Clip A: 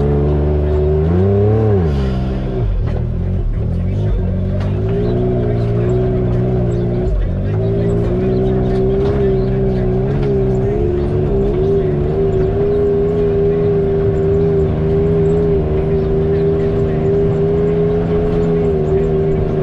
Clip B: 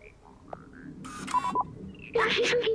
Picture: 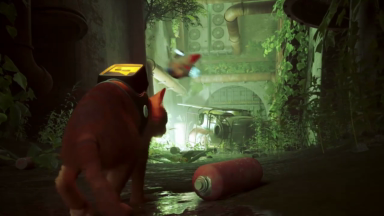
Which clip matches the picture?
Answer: B